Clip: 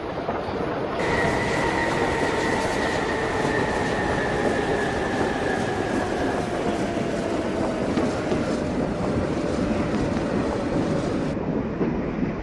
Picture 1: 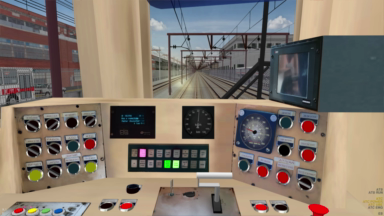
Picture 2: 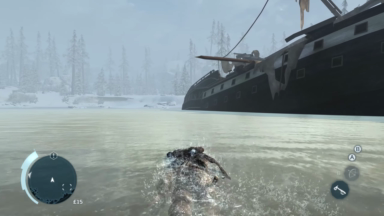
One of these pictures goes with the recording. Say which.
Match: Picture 1